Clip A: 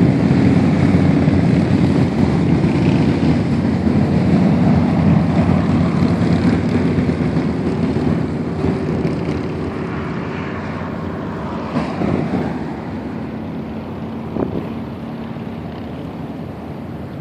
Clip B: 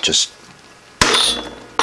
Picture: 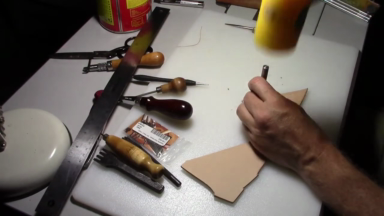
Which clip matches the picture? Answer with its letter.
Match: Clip B